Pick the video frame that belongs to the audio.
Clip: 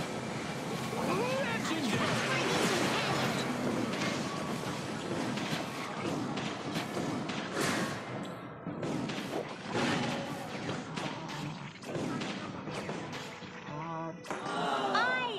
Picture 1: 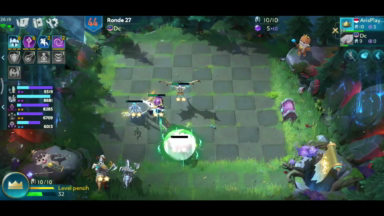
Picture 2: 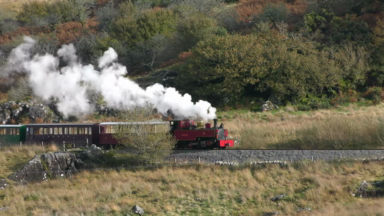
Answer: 1